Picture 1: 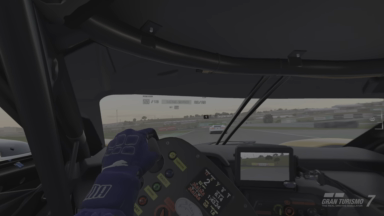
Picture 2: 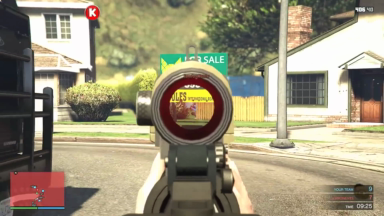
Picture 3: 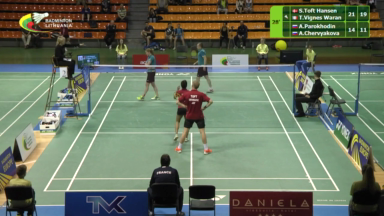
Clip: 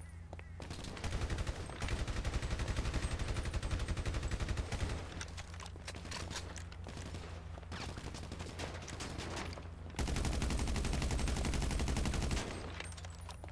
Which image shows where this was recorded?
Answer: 2